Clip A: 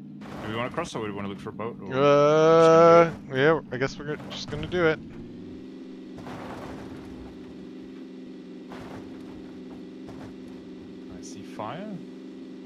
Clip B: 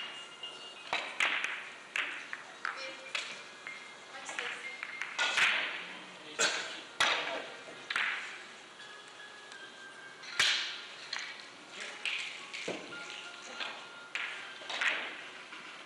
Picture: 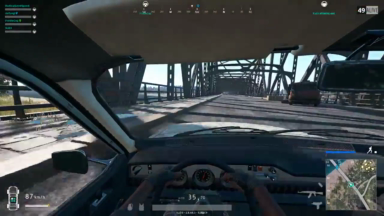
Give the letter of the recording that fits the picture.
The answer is A